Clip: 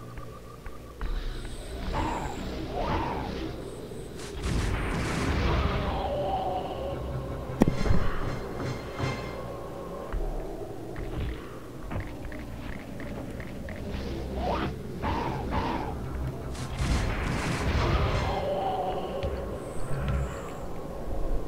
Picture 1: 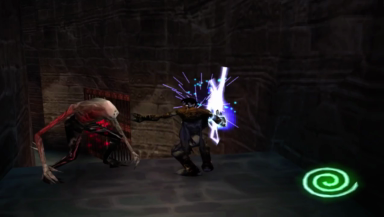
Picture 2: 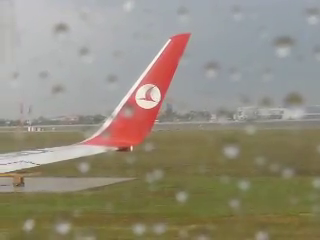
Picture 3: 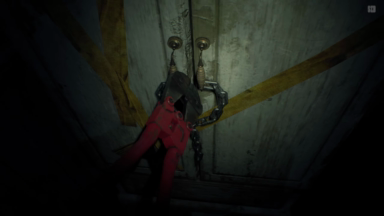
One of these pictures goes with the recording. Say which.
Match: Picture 1